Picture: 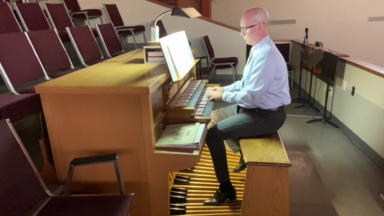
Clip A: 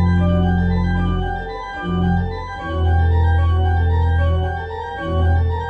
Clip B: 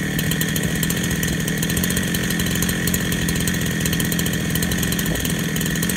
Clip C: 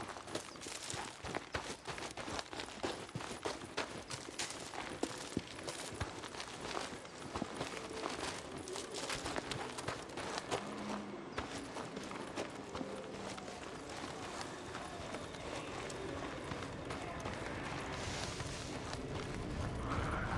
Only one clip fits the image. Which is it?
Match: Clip A